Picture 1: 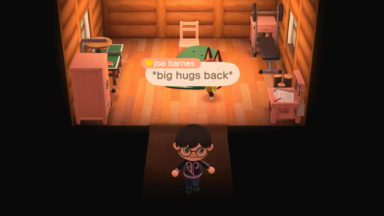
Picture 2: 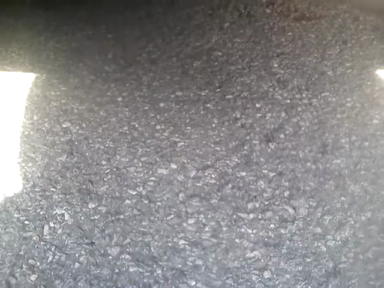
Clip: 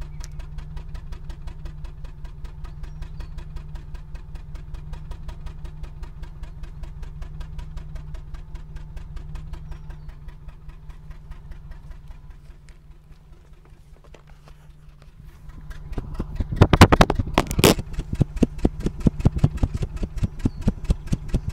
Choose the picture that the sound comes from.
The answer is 2